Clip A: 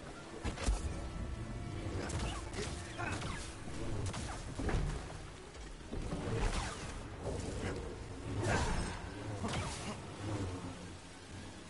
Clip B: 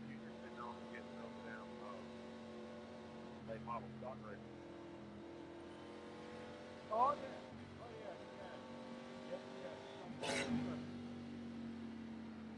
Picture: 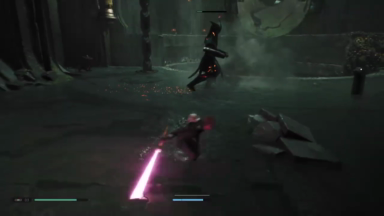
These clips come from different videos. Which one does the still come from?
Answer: A